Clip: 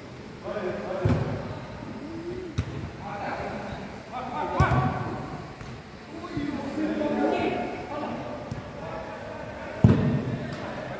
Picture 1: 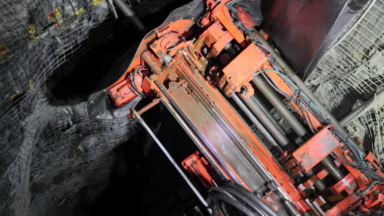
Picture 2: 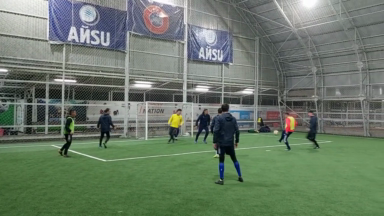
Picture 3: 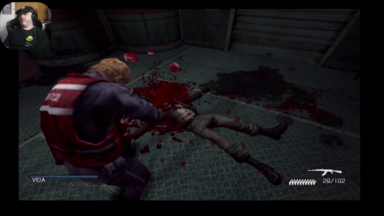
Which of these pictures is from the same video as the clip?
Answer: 2